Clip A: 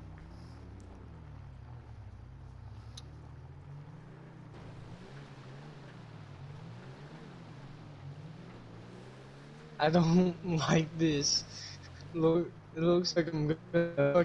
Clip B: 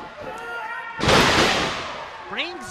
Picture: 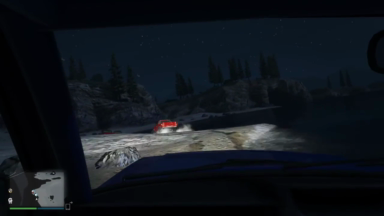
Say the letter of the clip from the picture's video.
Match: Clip A